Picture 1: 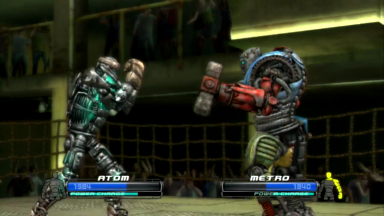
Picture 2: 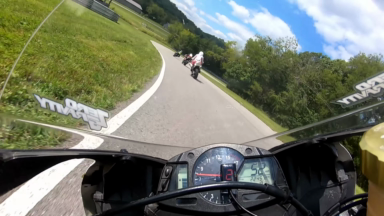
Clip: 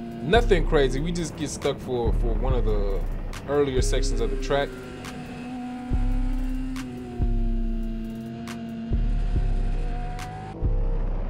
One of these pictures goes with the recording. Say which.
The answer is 2